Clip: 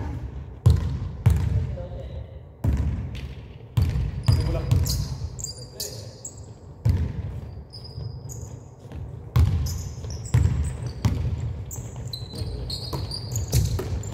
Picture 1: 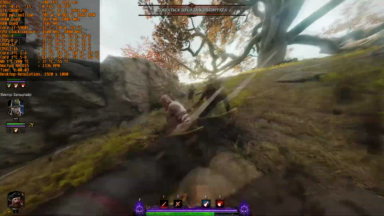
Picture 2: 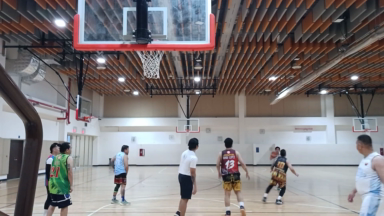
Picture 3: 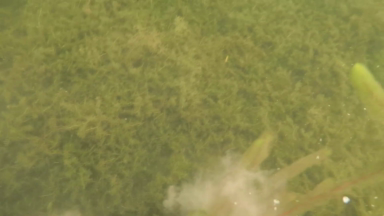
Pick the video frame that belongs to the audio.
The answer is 2